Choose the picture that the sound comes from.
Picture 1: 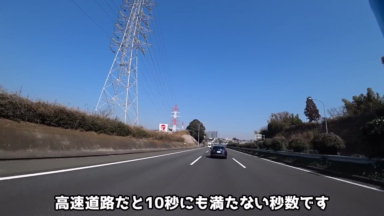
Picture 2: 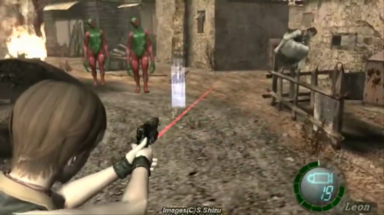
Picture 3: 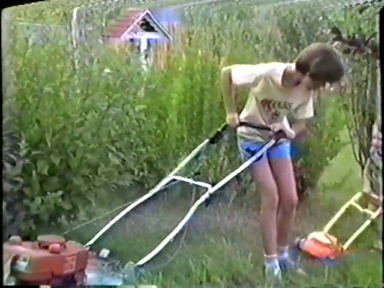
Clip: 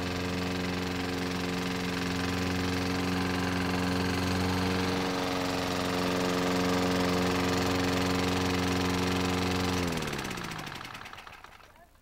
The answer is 3